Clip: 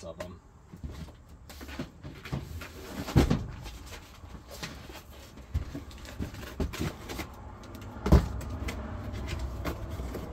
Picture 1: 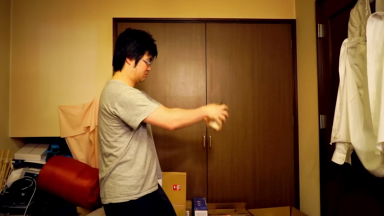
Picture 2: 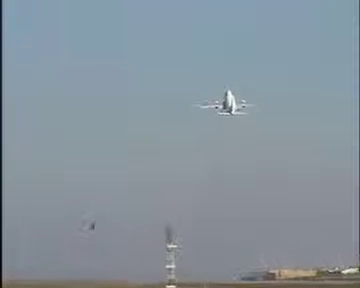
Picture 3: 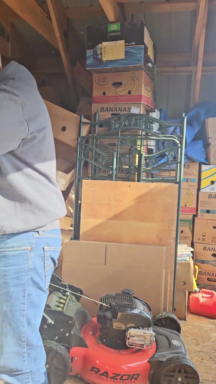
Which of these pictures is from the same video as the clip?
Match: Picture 3